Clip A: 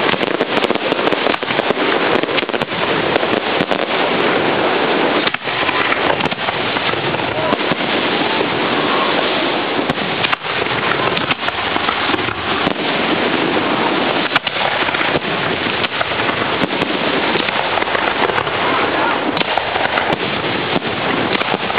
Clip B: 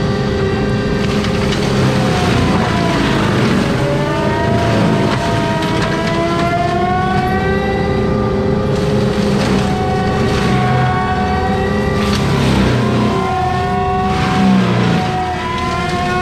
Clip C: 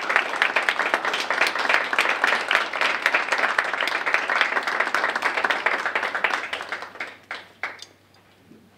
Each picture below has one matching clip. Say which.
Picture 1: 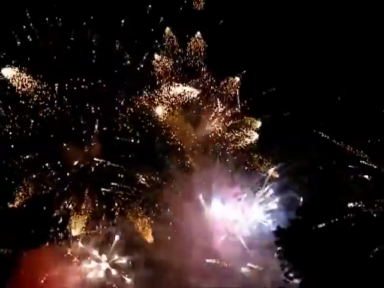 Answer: A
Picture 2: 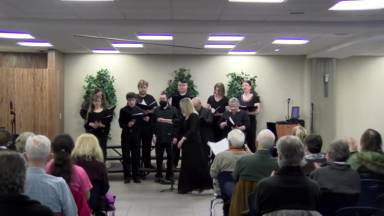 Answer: C